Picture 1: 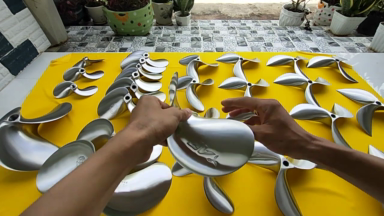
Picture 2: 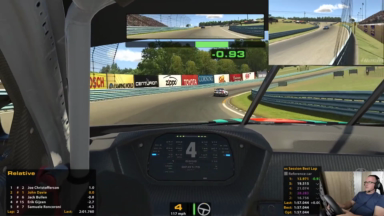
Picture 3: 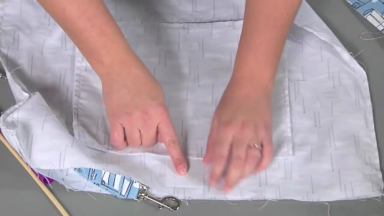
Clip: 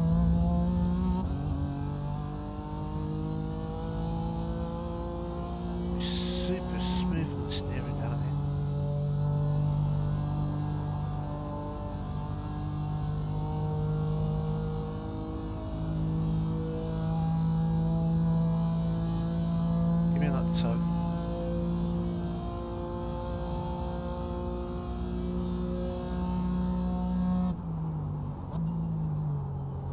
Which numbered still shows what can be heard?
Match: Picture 2